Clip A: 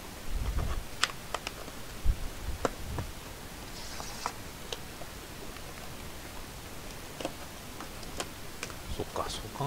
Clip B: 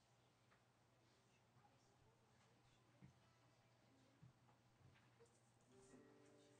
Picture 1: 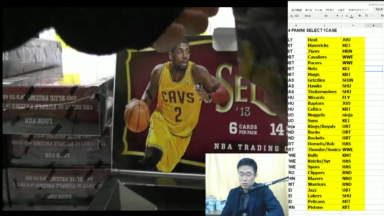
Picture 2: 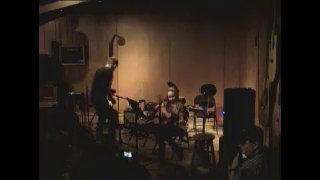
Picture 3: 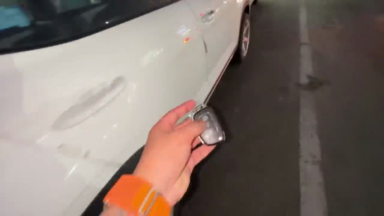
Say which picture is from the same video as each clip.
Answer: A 1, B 2